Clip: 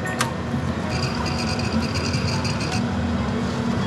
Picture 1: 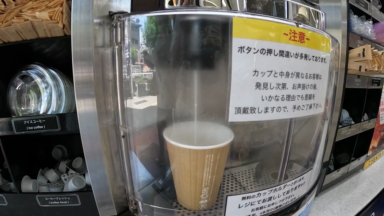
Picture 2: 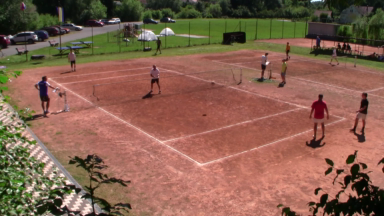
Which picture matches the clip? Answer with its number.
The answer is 1